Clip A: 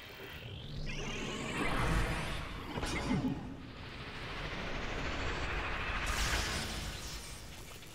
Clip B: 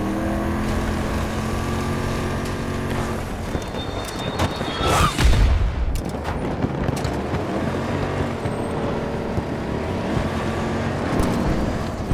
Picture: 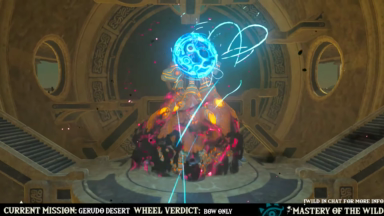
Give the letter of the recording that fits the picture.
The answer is A